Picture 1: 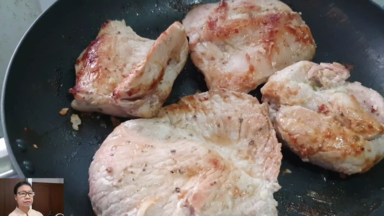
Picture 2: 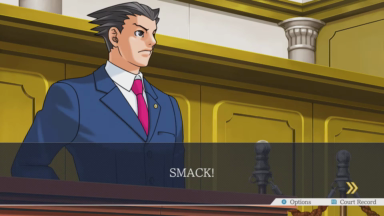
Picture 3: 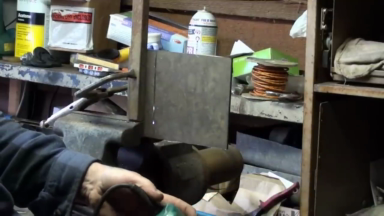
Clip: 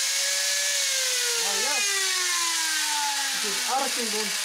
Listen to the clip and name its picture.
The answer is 3